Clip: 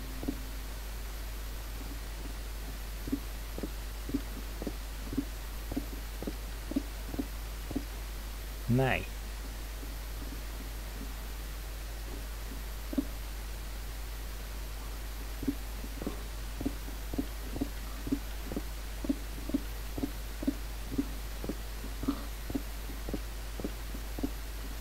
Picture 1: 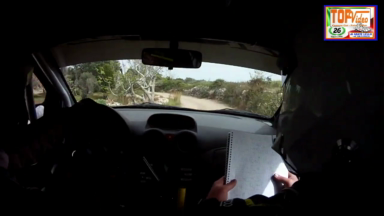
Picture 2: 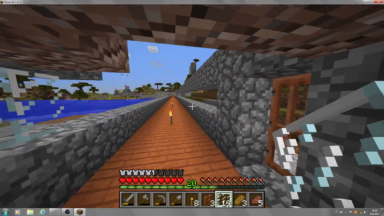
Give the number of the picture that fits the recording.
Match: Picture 2